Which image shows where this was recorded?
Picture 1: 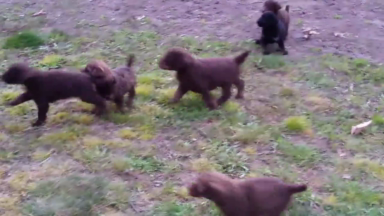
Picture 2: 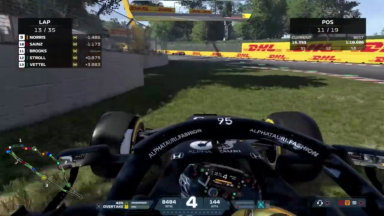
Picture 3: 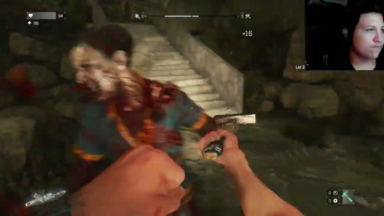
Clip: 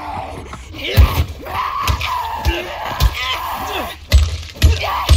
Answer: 3